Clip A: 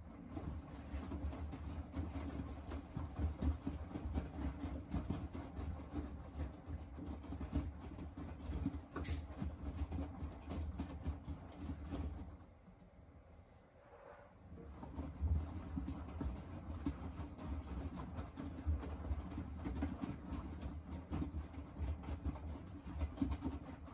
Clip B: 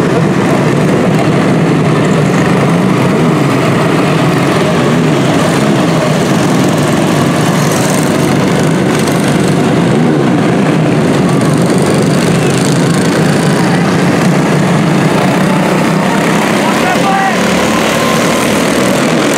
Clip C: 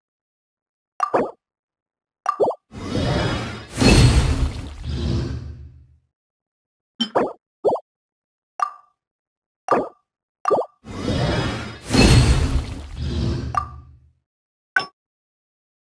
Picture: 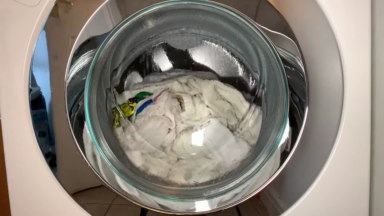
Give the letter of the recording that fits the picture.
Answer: A